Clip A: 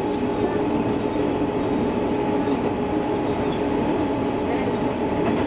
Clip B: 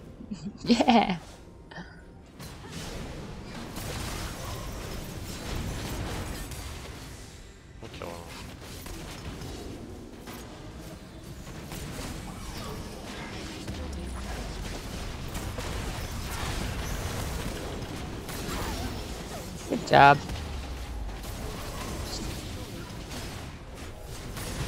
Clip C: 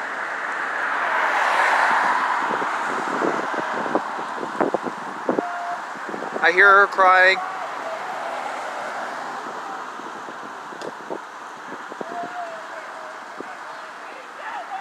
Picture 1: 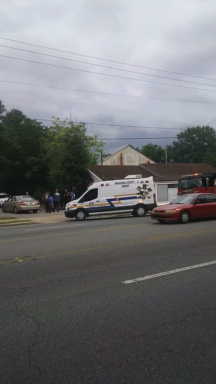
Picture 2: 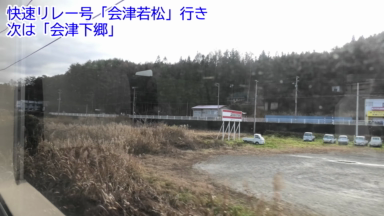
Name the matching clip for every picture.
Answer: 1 C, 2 A